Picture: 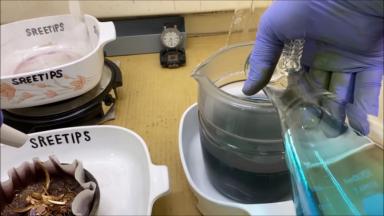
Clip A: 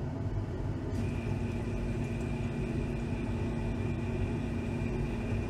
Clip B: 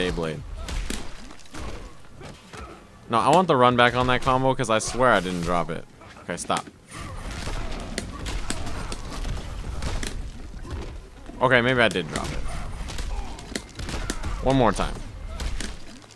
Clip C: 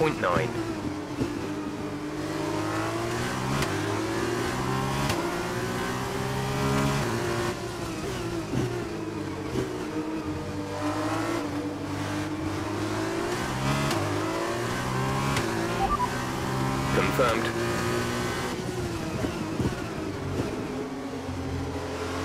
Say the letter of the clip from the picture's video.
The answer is A